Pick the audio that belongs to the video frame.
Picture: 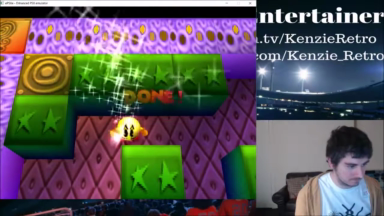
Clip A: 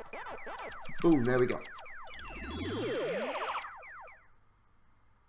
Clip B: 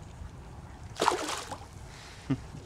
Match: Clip A